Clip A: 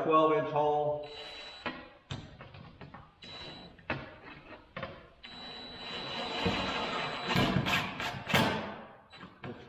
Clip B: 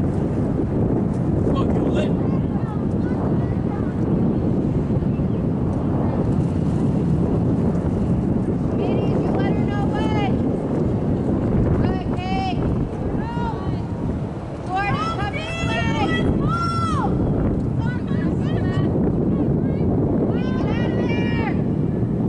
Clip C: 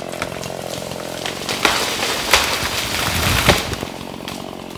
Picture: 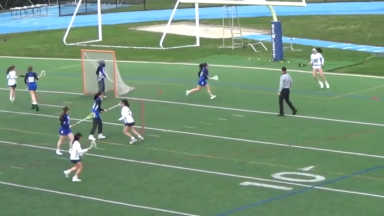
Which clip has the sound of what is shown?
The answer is B